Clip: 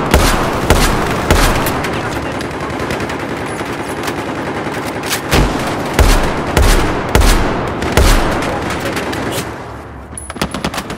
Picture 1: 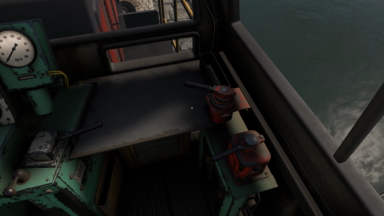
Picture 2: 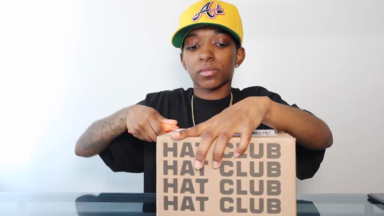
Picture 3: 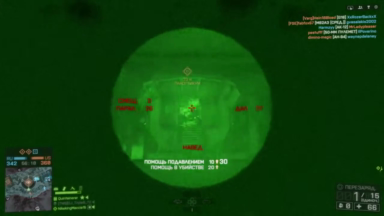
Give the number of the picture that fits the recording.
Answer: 3